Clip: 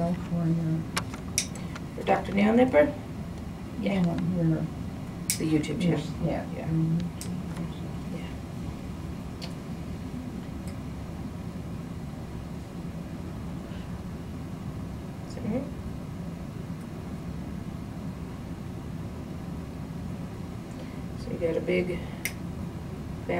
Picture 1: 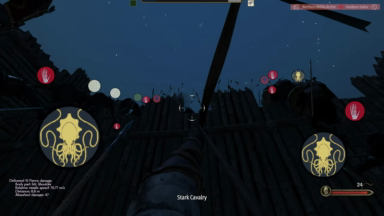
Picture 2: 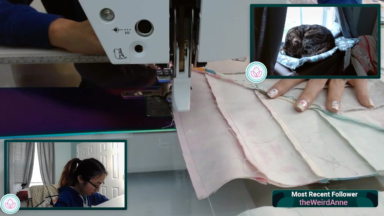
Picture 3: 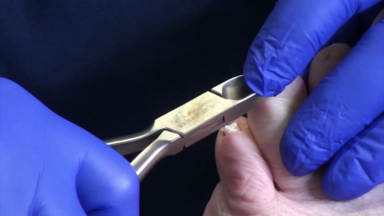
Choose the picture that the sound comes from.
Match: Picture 3